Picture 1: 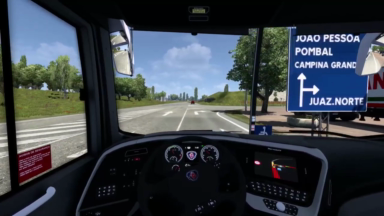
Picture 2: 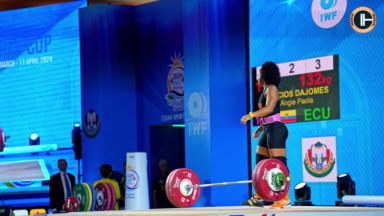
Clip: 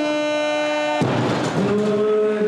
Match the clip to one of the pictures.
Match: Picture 2